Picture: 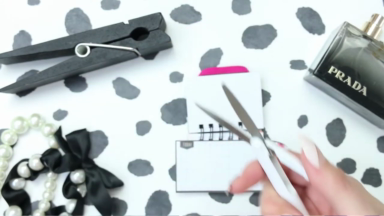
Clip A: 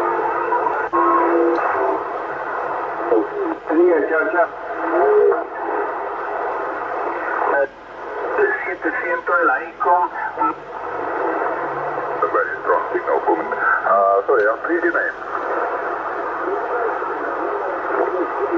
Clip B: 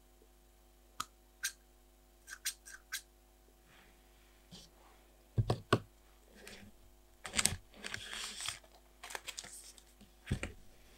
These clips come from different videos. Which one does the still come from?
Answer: B